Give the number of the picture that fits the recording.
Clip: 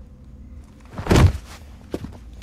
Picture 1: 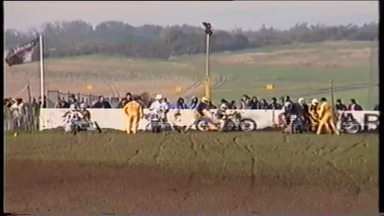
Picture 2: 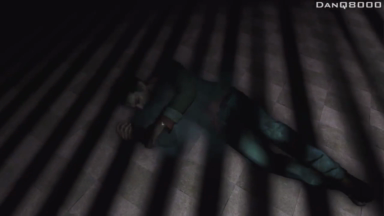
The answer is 2